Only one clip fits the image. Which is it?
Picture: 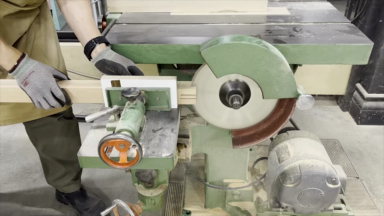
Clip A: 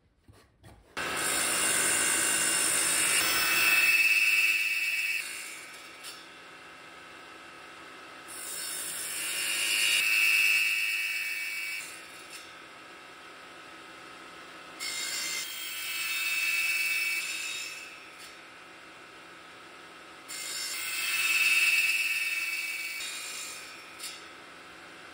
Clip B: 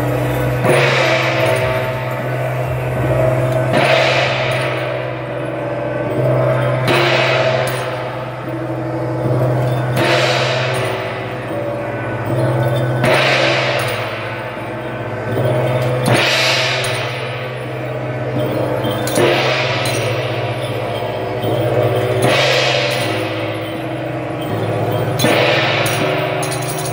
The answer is A